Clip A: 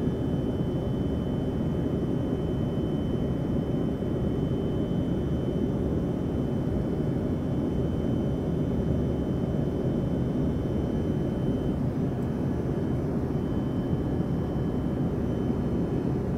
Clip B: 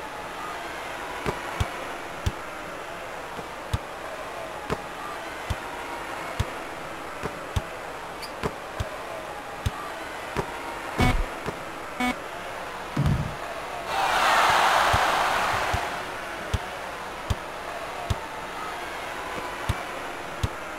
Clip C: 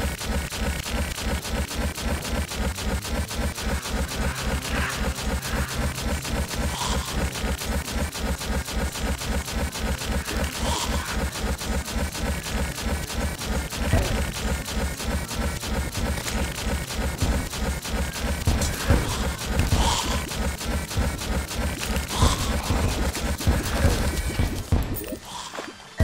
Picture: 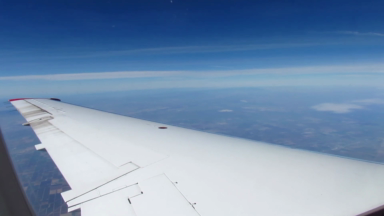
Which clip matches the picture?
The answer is A